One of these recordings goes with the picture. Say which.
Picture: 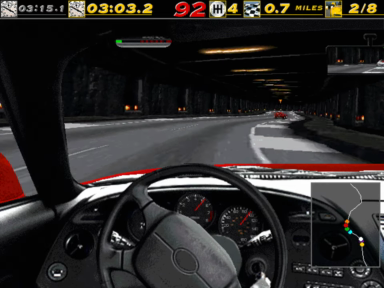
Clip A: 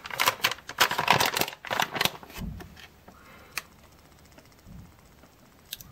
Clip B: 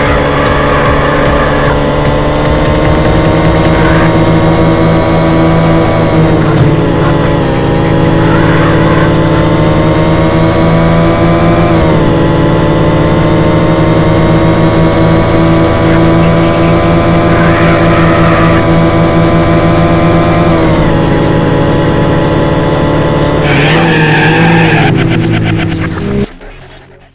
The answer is B